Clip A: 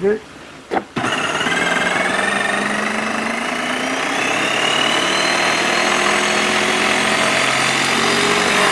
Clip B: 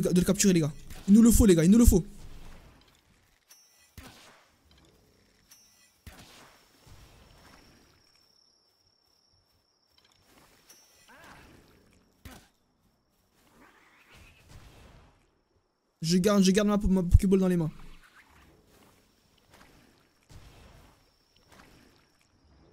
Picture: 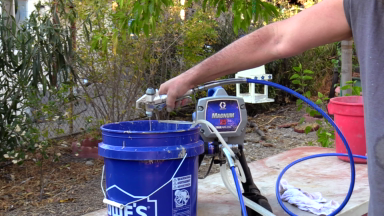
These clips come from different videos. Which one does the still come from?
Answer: A